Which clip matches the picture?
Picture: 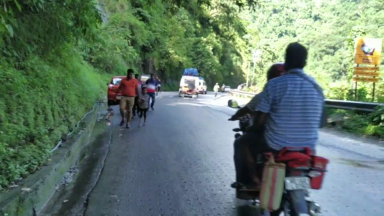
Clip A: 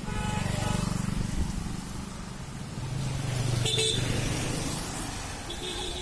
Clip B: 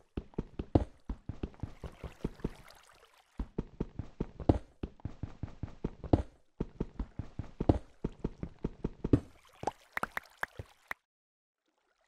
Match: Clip A